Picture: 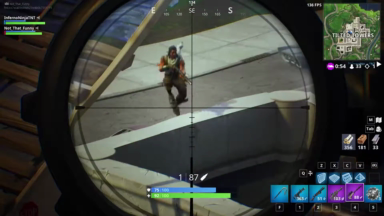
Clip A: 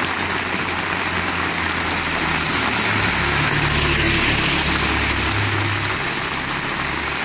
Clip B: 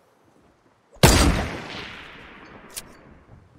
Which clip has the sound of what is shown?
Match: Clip B